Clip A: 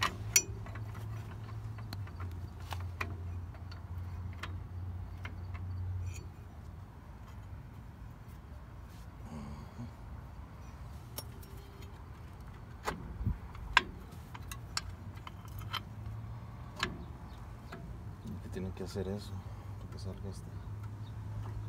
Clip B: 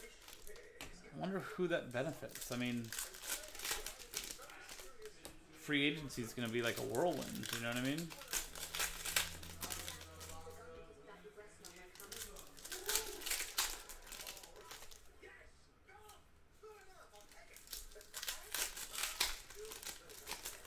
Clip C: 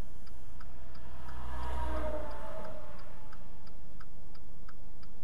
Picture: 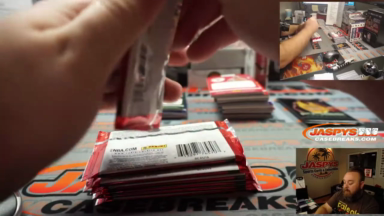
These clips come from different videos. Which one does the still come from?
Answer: B